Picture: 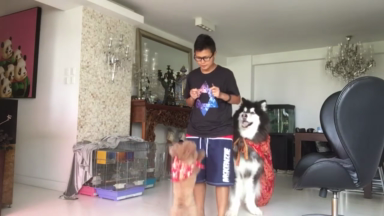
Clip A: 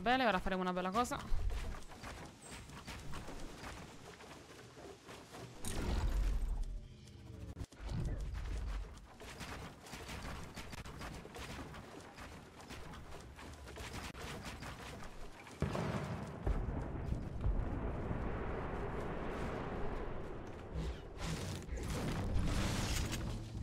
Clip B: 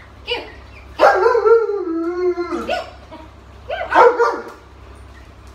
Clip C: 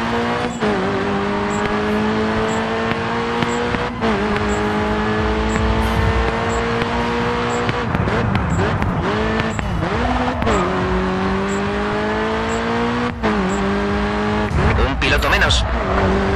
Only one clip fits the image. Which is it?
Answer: B